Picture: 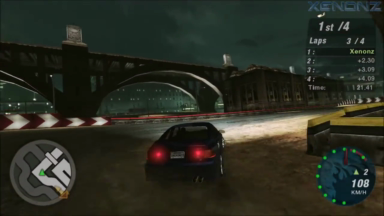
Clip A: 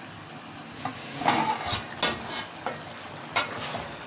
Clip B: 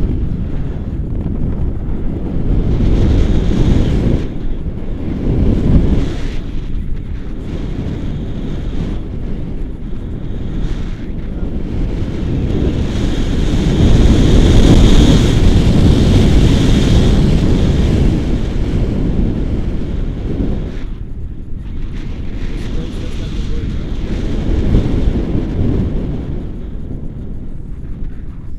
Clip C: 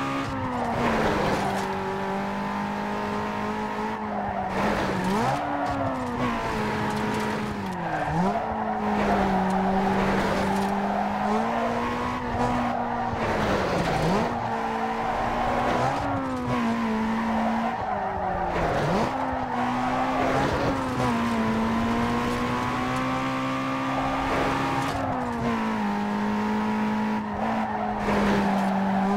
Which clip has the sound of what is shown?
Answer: C